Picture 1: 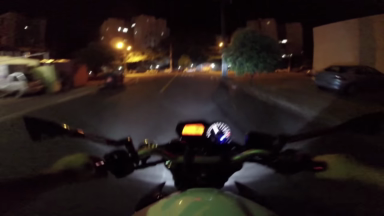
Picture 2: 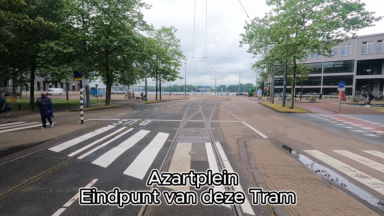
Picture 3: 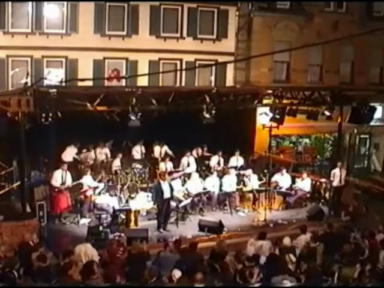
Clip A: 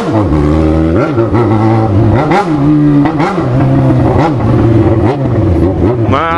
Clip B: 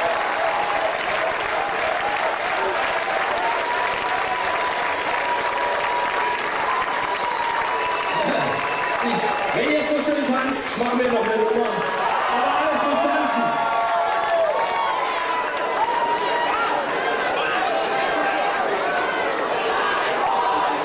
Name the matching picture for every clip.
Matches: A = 1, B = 3